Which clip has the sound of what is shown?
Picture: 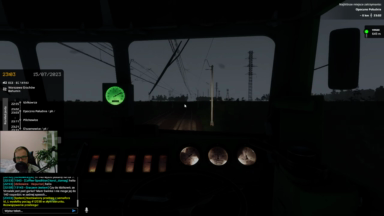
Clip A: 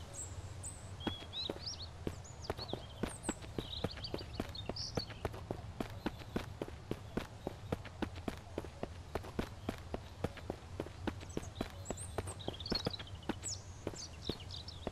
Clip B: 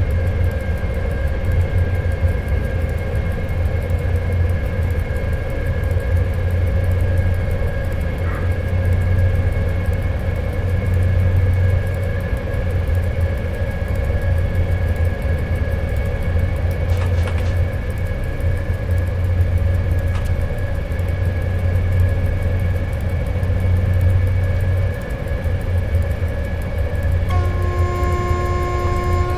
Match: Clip B